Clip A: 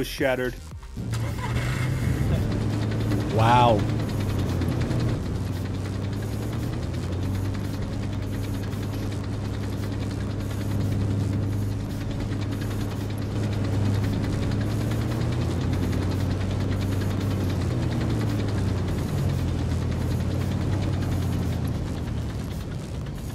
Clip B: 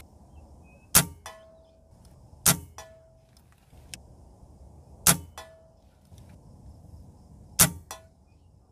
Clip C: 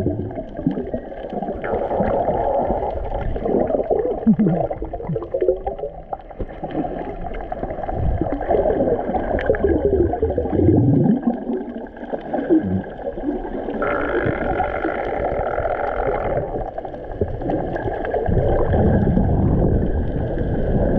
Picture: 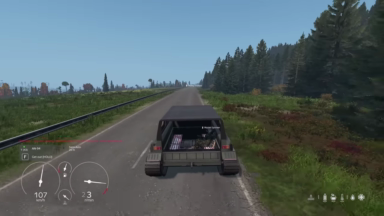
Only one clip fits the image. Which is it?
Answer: A